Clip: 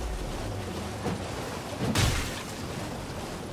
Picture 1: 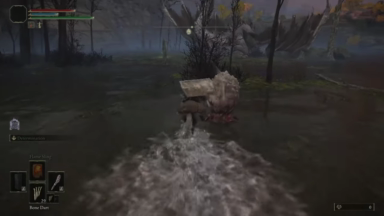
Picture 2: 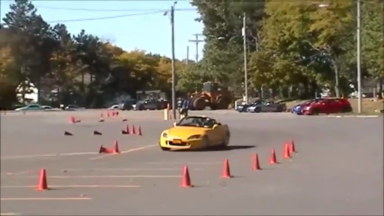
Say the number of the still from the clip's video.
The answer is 1